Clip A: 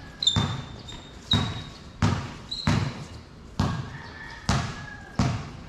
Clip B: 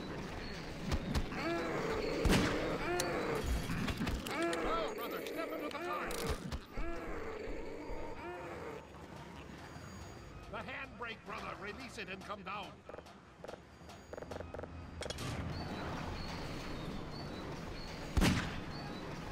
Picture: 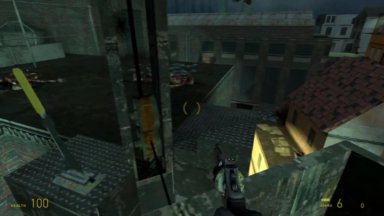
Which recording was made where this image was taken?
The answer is B